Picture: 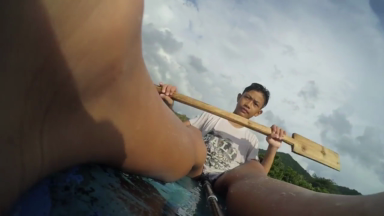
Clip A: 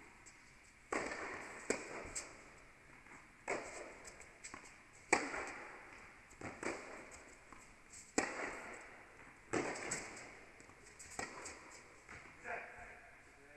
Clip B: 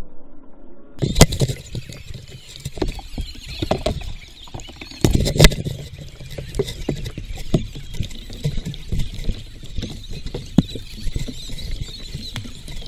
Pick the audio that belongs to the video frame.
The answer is B